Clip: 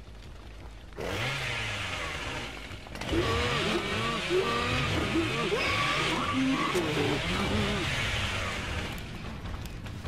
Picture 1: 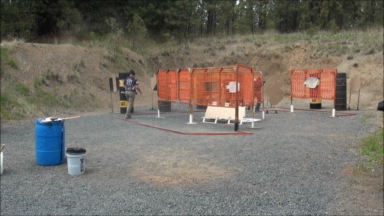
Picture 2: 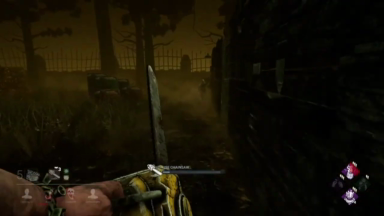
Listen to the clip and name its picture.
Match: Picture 2